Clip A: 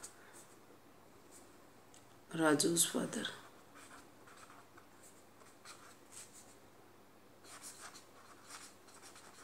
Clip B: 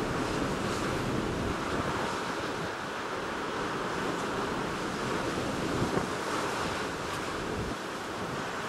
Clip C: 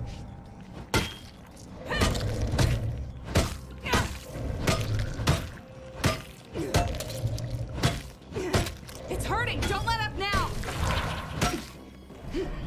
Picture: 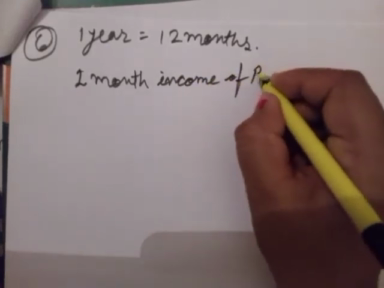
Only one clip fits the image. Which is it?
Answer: A